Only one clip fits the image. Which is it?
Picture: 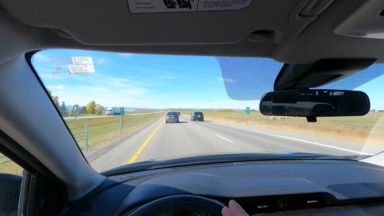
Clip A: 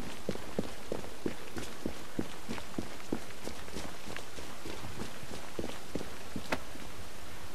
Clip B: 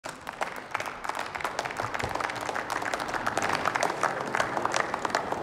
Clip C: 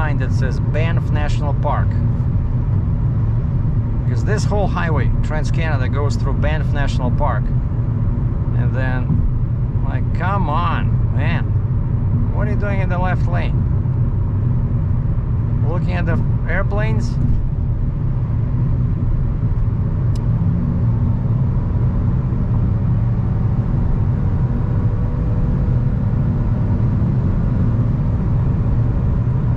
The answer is C